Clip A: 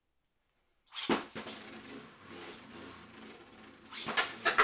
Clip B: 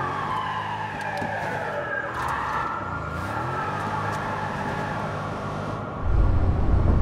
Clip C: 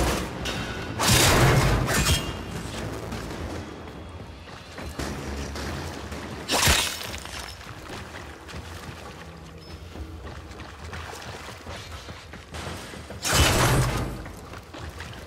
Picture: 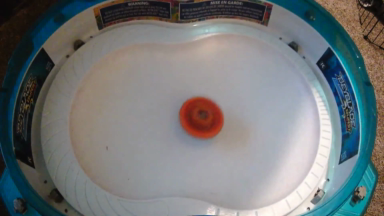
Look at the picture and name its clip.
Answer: A